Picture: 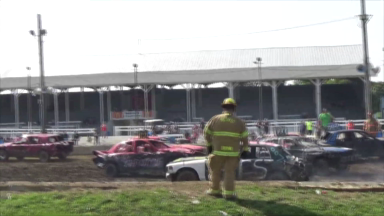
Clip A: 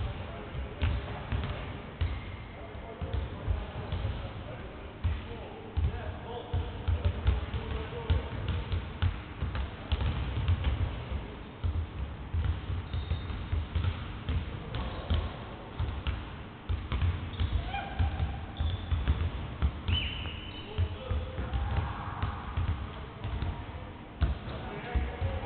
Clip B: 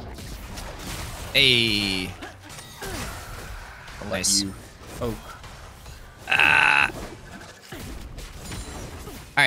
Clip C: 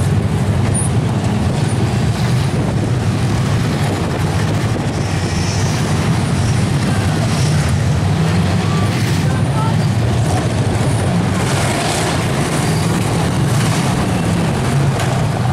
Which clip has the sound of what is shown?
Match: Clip C